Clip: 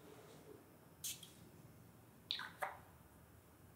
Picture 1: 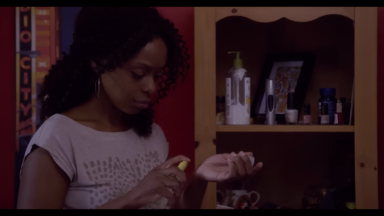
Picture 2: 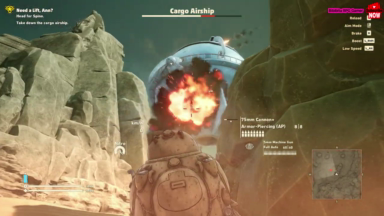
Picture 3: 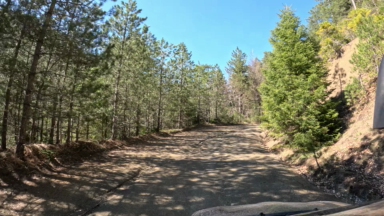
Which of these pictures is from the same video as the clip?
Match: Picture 1